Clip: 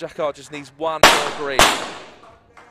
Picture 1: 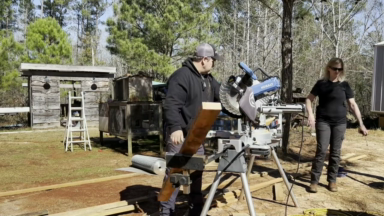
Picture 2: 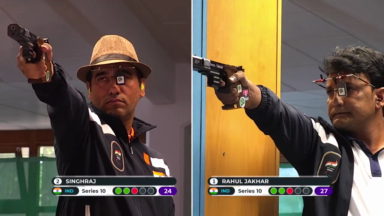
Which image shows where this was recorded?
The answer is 2